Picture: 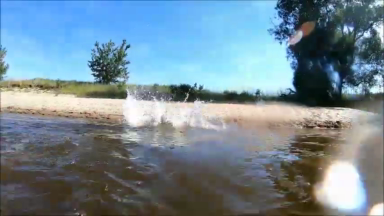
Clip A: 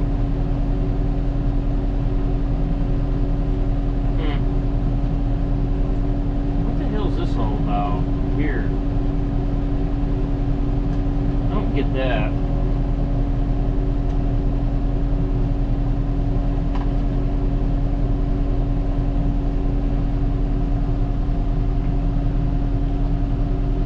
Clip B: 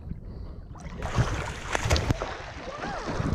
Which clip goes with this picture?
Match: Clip B